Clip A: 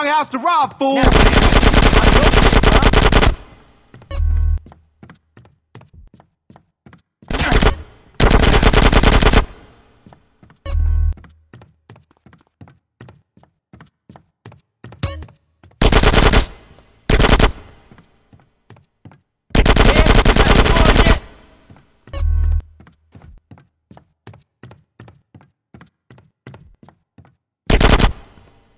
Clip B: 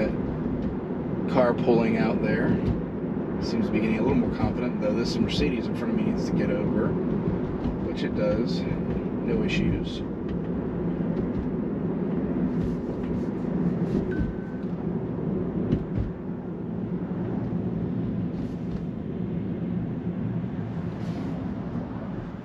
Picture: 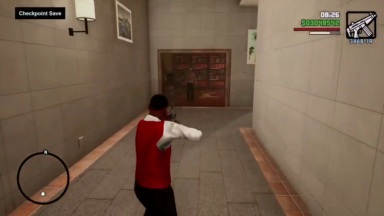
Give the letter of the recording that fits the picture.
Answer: A